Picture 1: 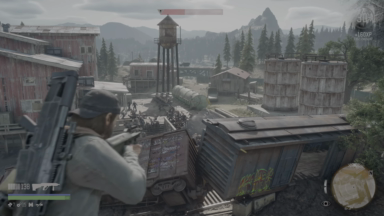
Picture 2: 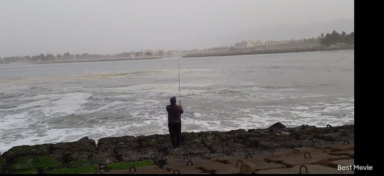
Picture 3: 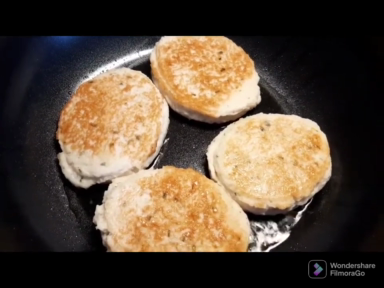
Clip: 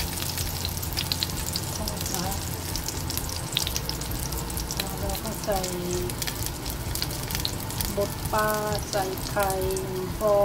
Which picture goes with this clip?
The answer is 3